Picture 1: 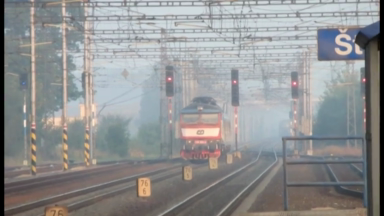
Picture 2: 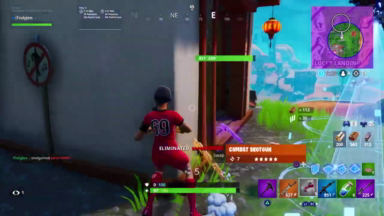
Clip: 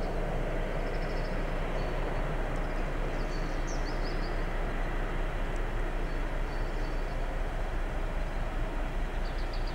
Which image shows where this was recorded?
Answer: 1